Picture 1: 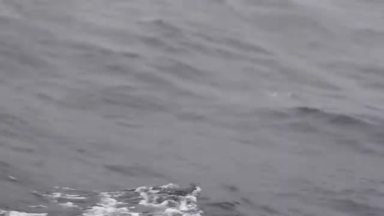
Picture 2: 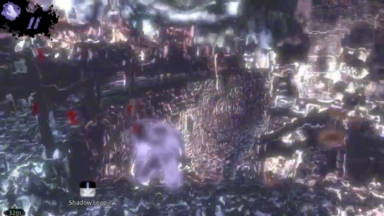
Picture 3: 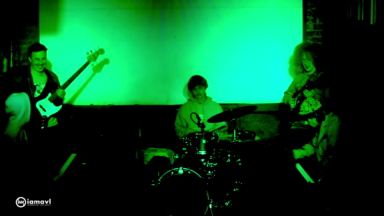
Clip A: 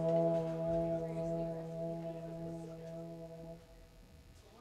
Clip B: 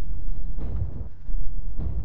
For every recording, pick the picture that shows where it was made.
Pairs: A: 3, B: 2